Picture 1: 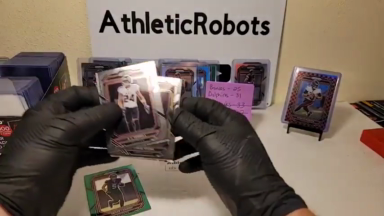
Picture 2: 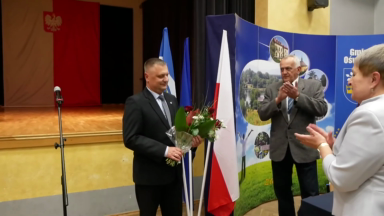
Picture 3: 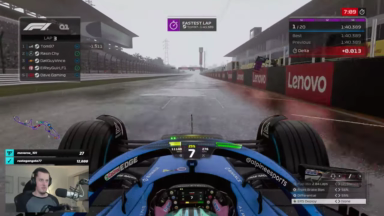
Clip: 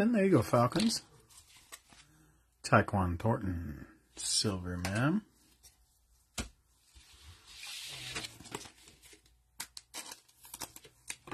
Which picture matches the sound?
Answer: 1